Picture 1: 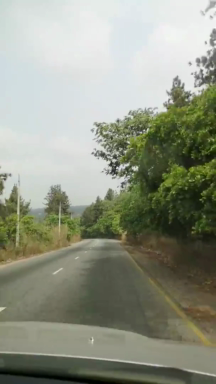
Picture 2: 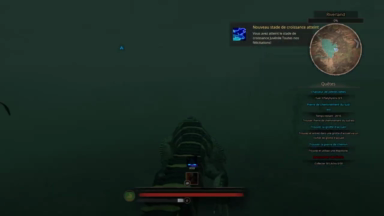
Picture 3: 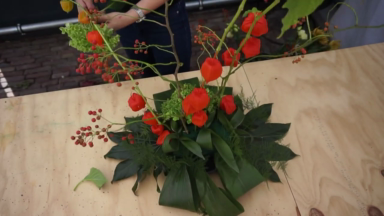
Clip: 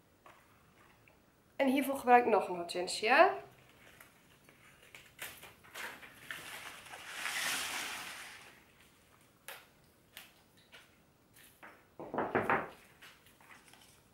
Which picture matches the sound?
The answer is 3